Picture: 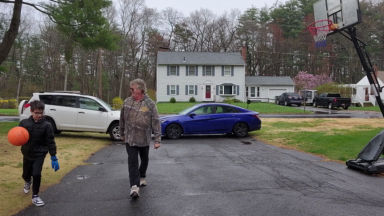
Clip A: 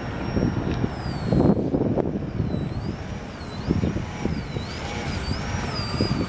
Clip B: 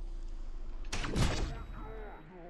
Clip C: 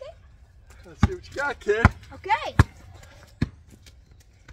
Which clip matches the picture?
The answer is C